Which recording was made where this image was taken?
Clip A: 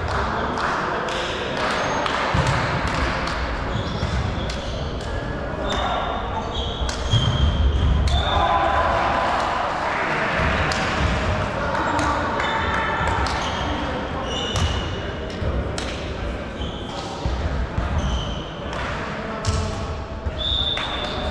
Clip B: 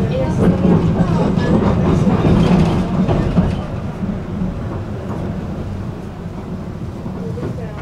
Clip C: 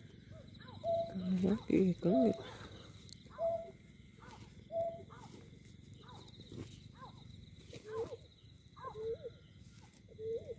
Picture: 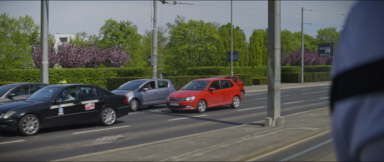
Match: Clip B